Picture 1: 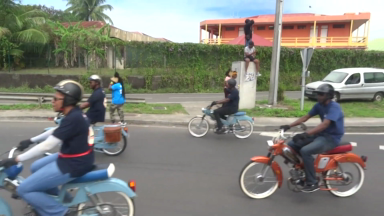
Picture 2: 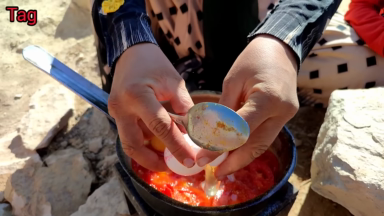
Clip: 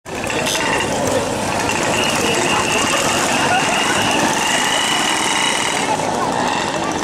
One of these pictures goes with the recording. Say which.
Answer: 1